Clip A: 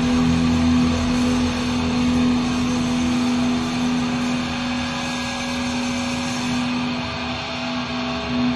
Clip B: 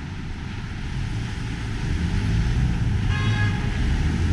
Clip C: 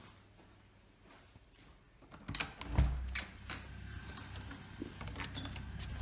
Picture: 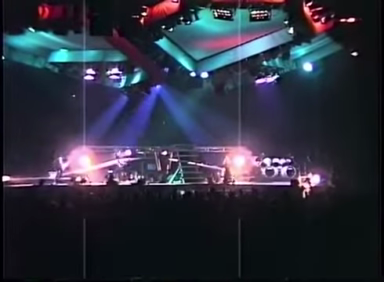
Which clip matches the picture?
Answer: A